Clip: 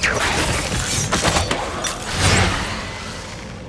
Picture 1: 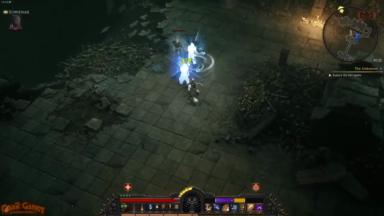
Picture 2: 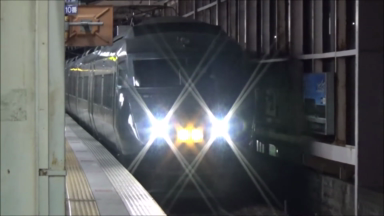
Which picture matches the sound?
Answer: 1